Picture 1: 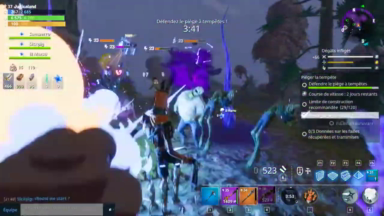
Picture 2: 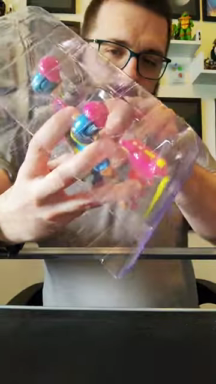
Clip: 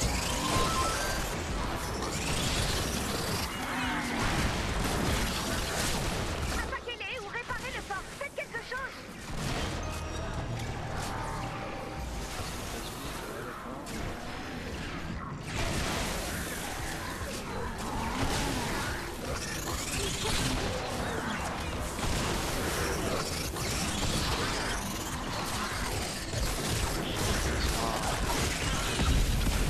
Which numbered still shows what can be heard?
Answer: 1